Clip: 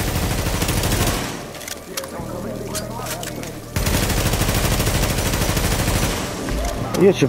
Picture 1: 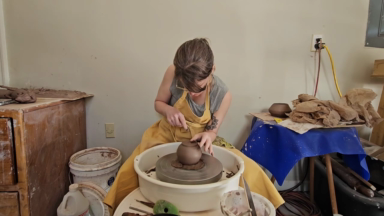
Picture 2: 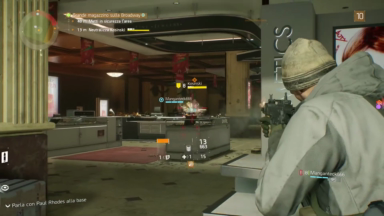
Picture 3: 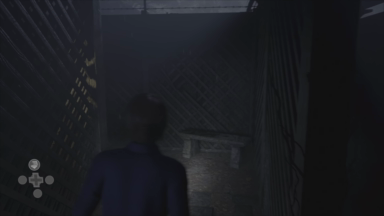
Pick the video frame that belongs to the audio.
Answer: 2